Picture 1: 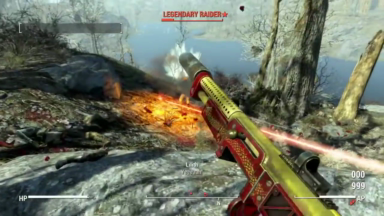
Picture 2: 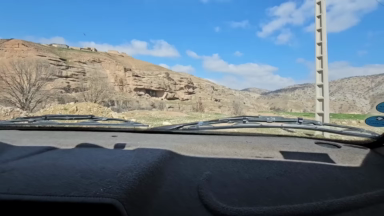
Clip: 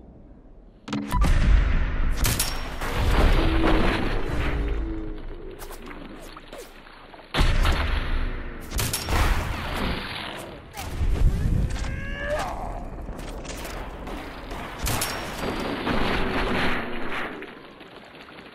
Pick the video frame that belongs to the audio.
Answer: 1